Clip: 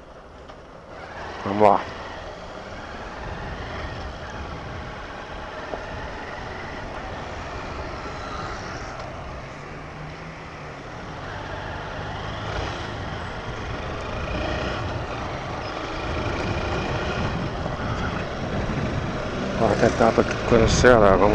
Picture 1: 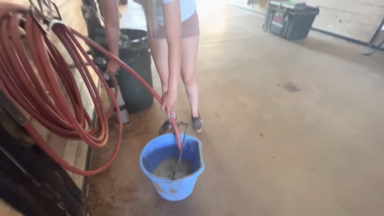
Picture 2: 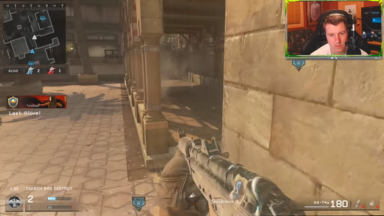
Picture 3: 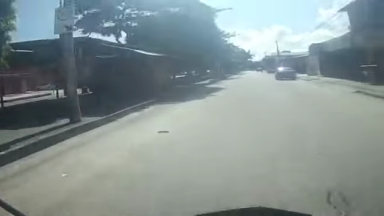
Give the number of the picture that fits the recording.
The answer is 3